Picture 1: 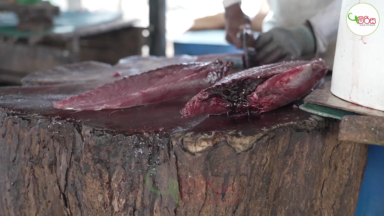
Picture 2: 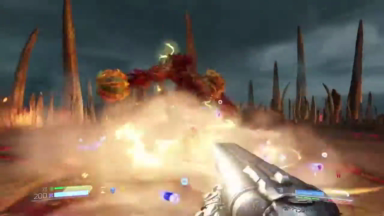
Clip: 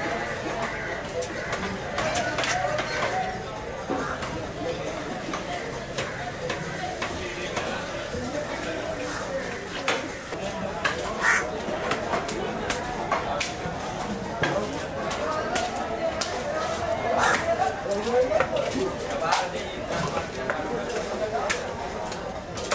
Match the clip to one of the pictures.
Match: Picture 1